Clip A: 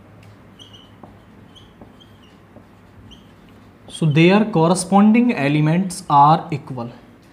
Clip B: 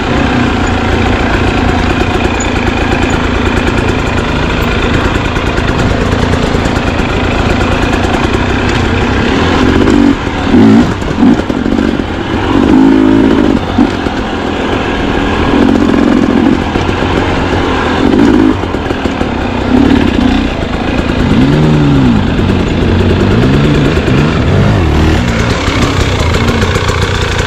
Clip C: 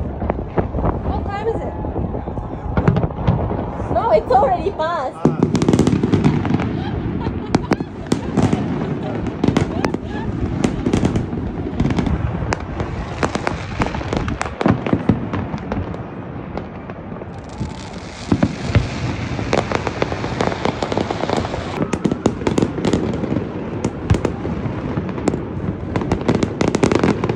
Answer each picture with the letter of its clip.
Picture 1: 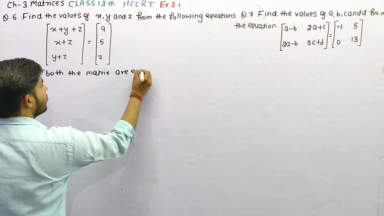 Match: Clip A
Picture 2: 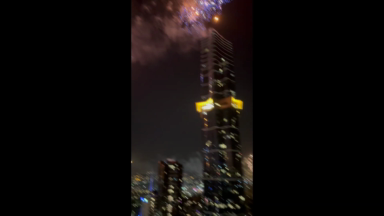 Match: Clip C